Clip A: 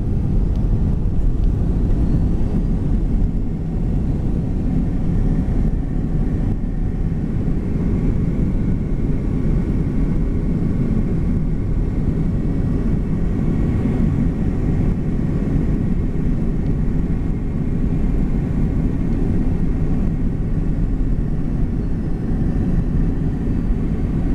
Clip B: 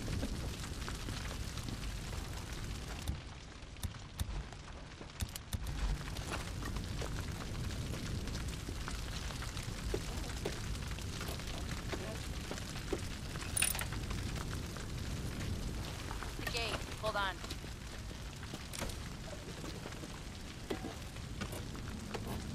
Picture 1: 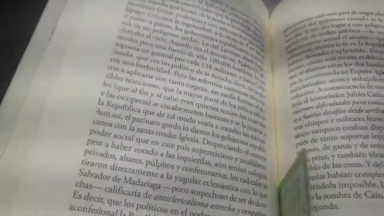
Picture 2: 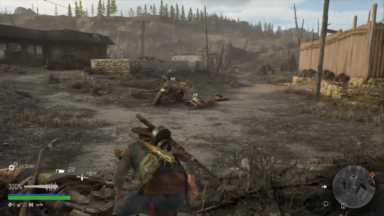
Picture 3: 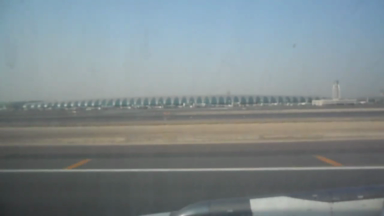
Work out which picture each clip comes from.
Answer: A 3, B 2